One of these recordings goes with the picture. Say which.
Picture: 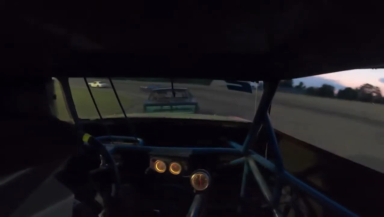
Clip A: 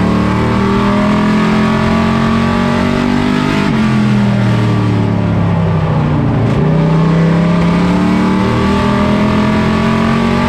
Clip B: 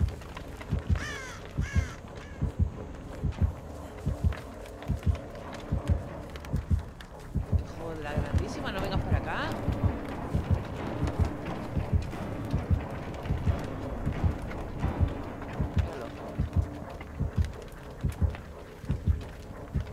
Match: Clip A